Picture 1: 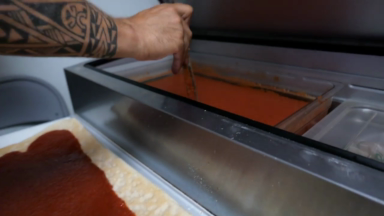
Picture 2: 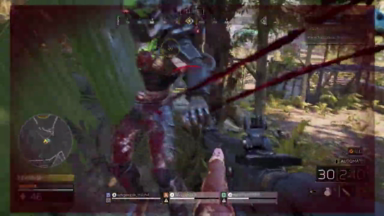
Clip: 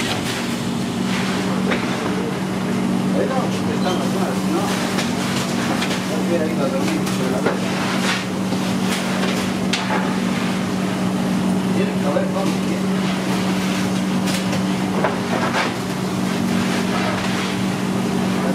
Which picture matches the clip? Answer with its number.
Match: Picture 1